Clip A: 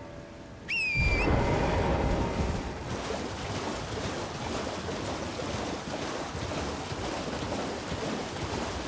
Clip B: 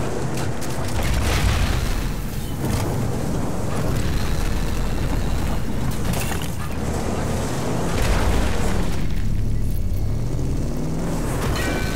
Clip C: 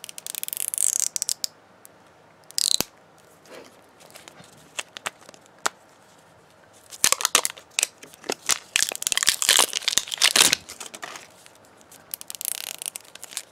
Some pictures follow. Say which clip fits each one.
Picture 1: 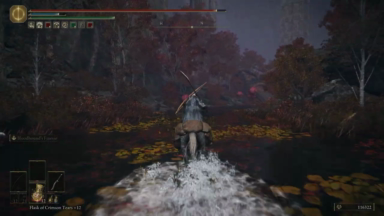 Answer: A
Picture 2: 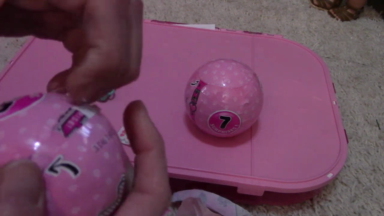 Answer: C